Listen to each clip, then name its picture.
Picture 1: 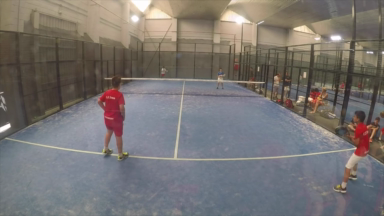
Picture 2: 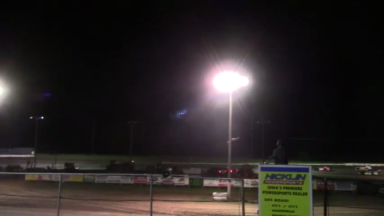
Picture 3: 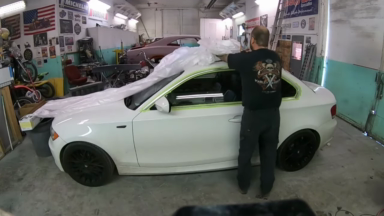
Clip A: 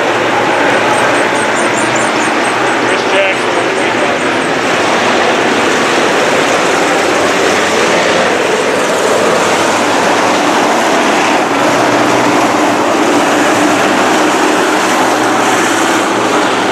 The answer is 2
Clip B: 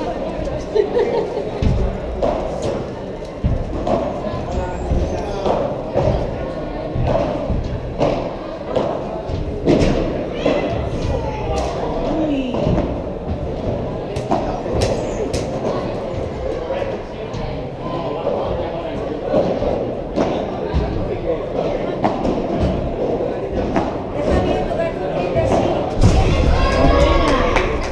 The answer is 1